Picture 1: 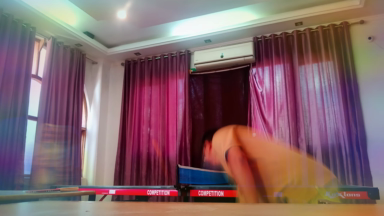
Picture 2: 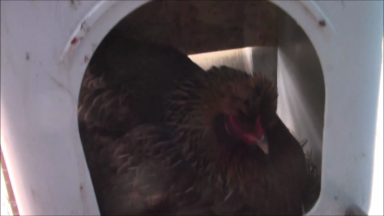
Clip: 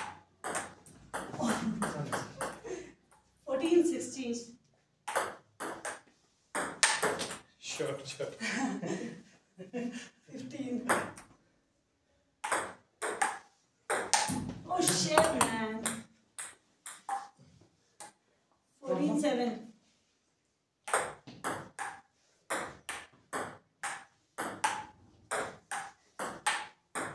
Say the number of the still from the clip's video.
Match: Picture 1